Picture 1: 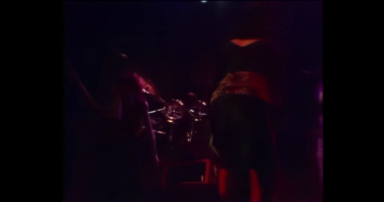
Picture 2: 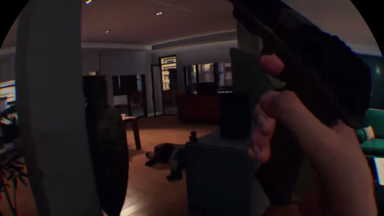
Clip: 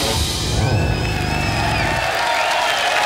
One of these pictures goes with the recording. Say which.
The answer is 1